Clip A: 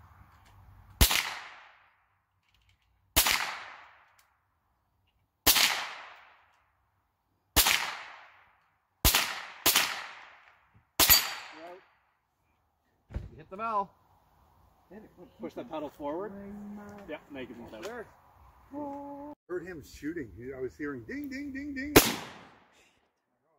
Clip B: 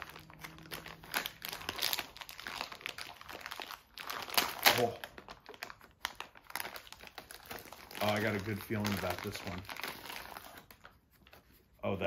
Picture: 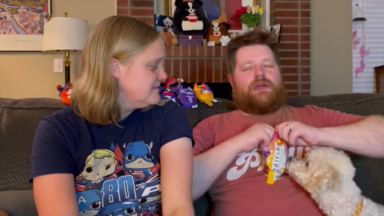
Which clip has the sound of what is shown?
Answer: B